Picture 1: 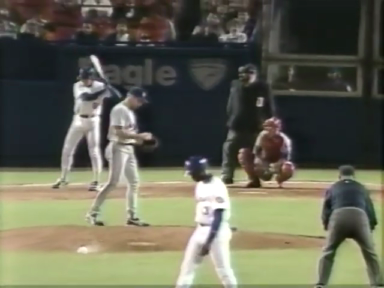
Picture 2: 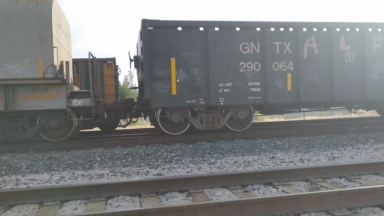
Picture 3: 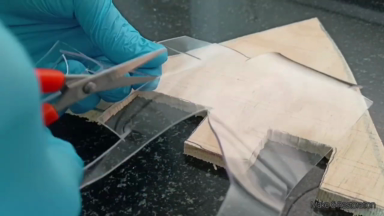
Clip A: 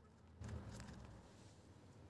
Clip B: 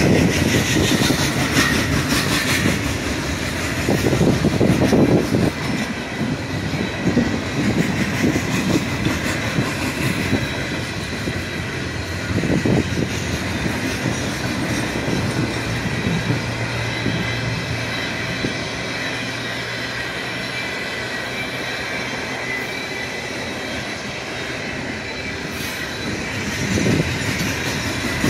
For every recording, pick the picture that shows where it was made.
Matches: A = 3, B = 2